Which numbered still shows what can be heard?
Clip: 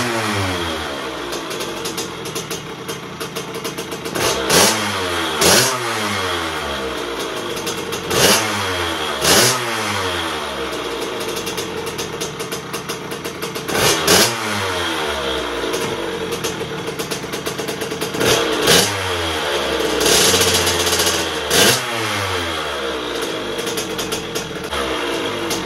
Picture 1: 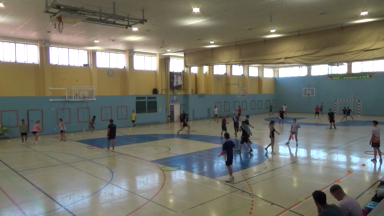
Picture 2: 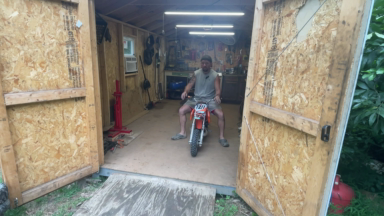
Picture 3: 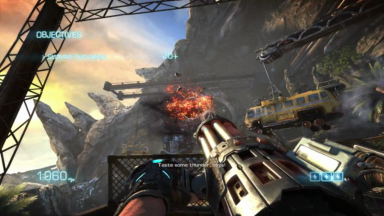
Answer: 2